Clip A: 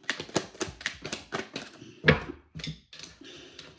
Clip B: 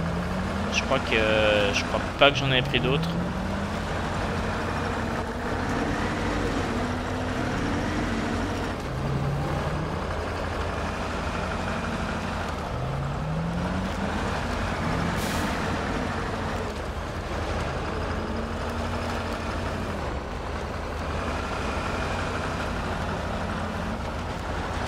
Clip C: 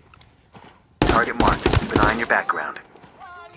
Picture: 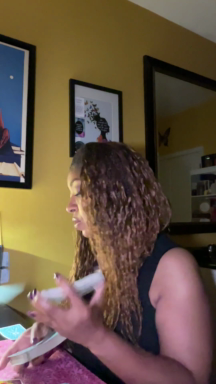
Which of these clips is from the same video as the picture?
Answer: A